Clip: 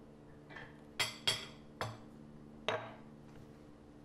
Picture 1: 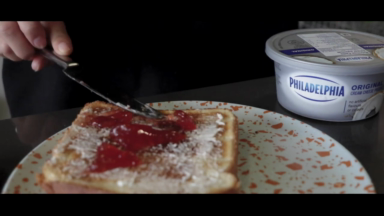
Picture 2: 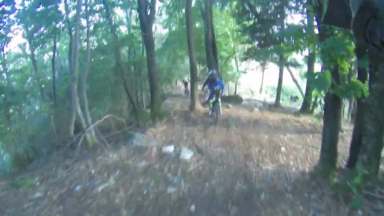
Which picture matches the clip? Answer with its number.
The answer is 1